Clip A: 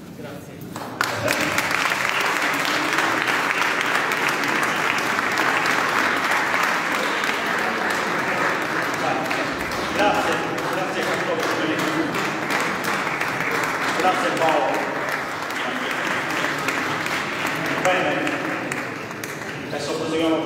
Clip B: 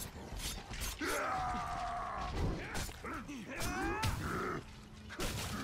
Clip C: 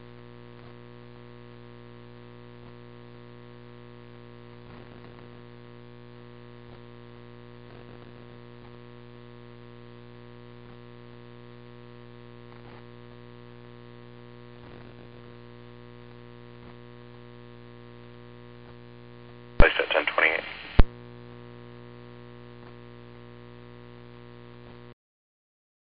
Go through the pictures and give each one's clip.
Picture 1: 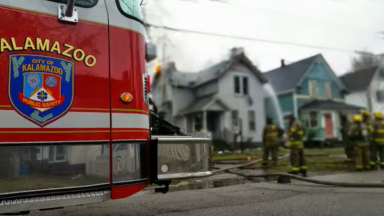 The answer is C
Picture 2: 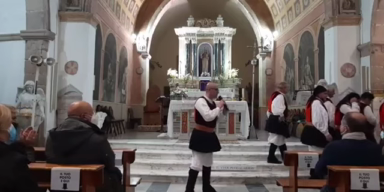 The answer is A